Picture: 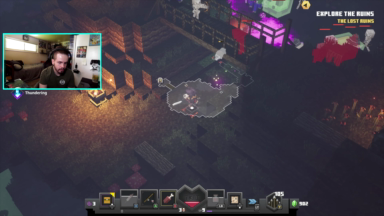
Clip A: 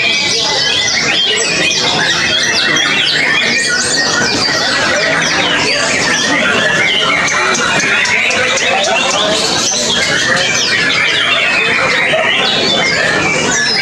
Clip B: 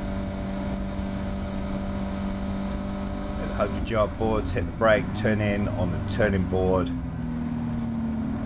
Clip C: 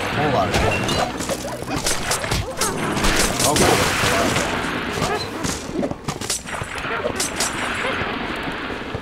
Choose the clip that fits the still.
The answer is C